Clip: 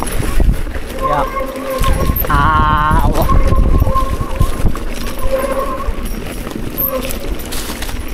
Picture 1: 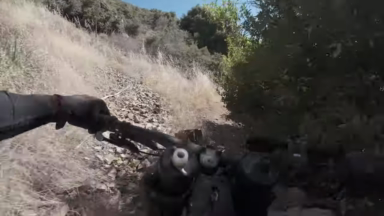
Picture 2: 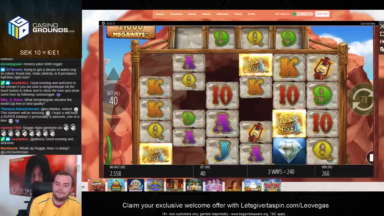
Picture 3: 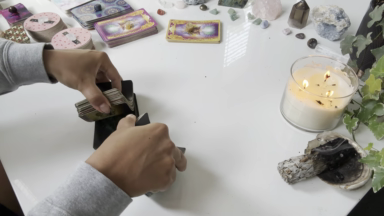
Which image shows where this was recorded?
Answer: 1